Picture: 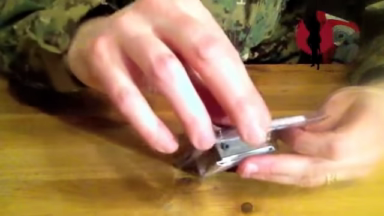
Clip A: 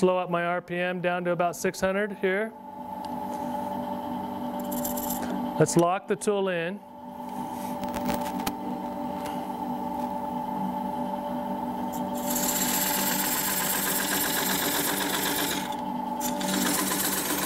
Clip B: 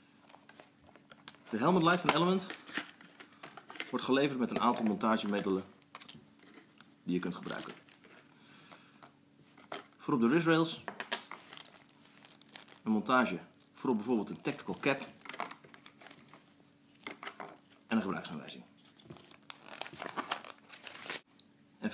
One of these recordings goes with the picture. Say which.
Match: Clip B